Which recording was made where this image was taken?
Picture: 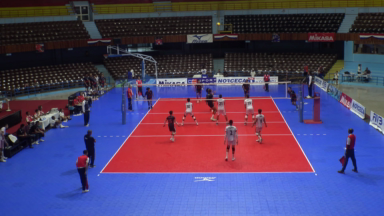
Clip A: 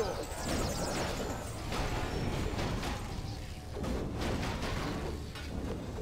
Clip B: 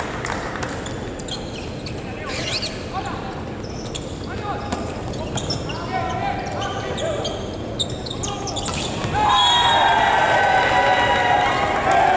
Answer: B